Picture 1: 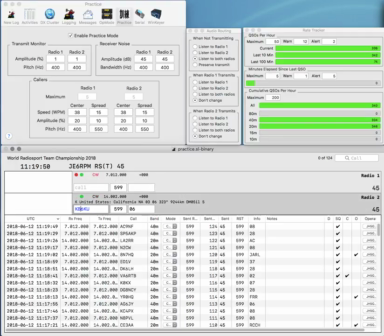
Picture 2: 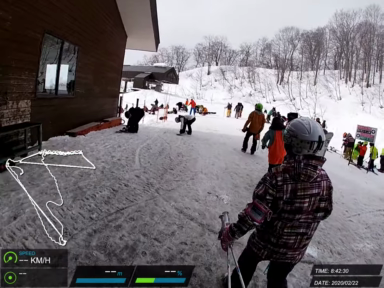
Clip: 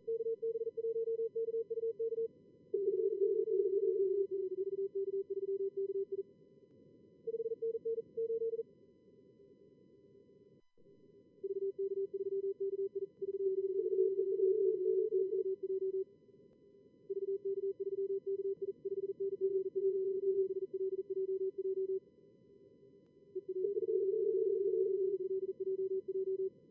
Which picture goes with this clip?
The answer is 1